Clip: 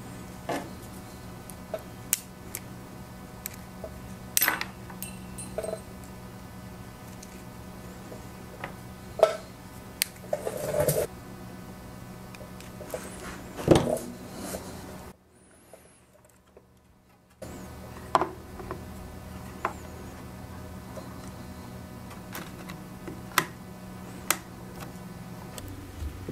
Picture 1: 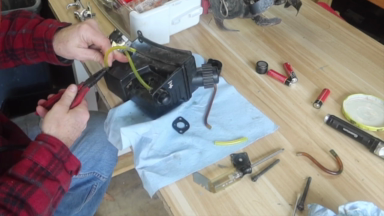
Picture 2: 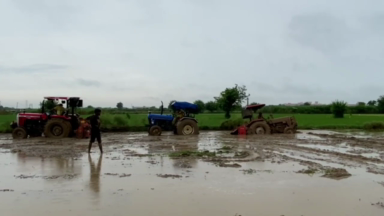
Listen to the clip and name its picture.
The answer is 1